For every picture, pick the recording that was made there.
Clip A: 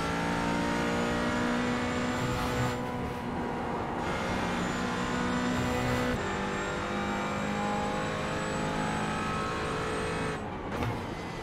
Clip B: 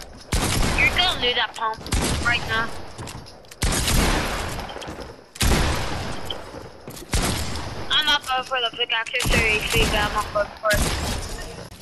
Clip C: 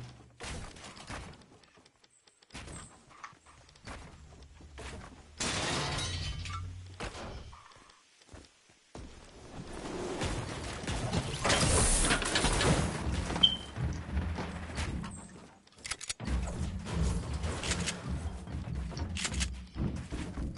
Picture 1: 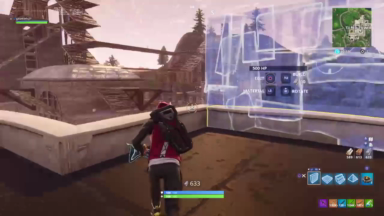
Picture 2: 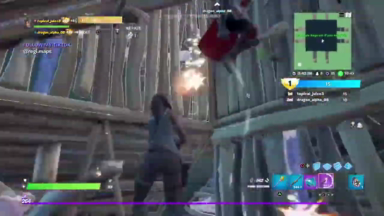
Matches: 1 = C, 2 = B